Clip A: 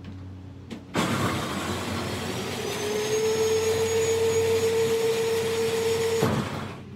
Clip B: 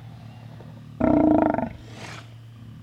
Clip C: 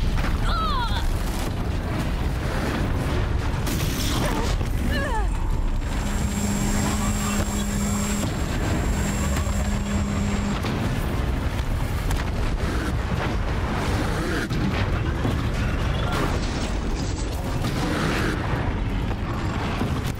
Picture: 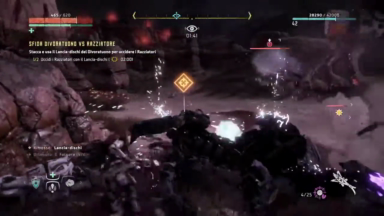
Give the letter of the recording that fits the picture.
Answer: C